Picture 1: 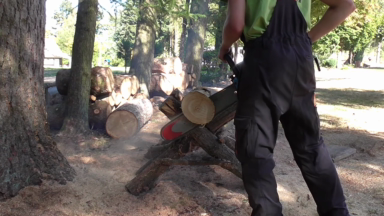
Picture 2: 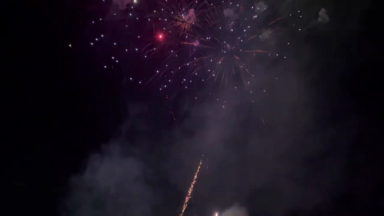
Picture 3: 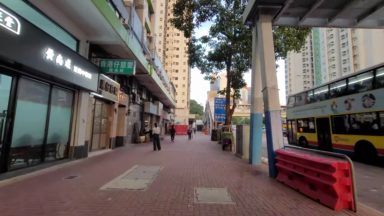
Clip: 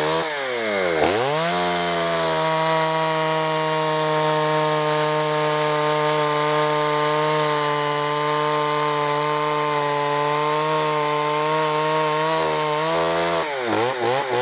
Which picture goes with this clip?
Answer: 1